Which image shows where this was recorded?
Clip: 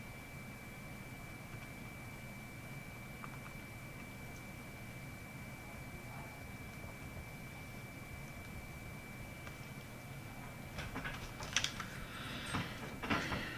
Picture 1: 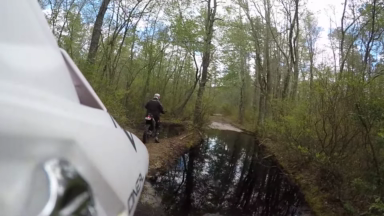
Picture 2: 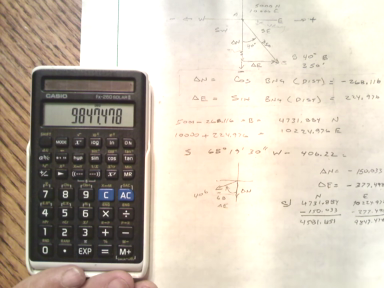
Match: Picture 2